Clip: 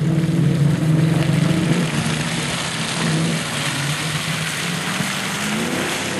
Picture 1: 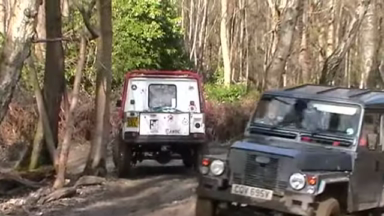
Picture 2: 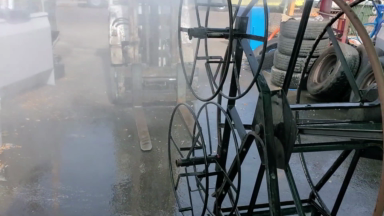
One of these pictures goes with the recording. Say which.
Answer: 1